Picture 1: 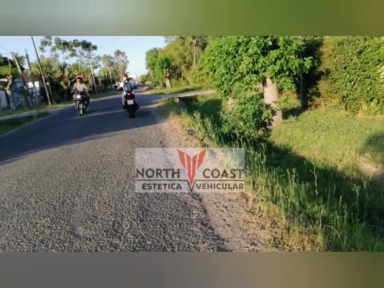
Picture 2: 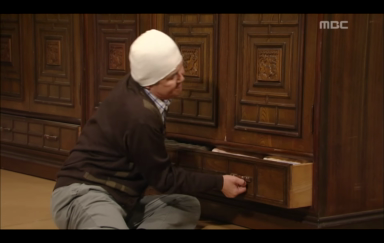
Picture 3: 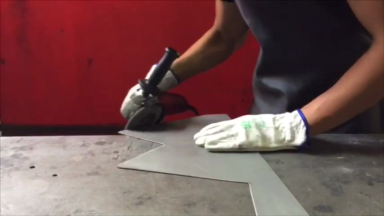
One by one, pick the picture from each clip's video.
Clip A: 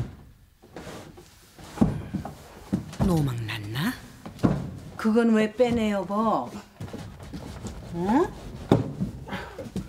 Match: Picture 2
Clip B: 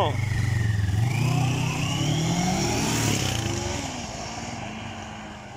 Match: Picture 1